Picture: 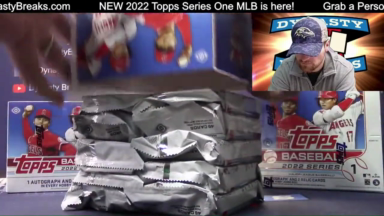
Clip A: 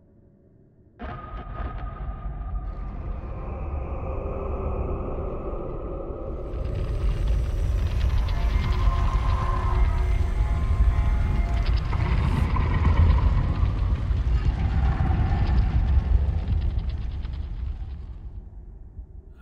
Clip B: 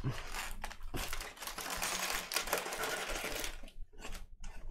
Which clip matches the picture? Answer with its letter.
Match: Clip B